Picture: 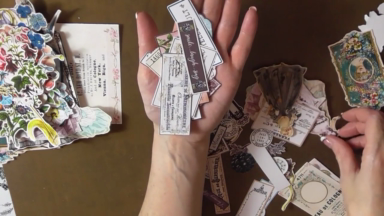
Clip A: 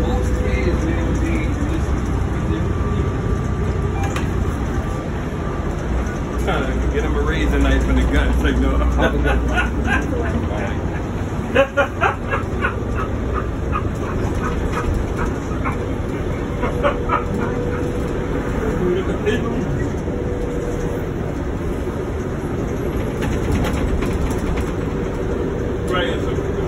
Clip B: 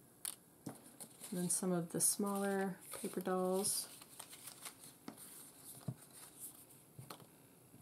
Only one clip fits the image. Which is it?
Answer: B